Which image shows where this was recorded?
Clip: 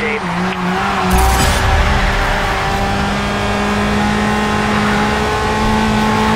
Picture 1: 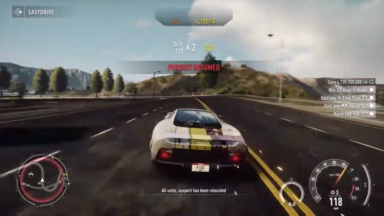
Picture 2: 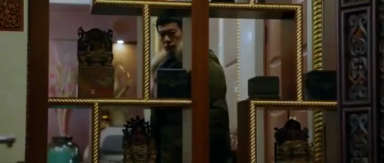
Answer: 1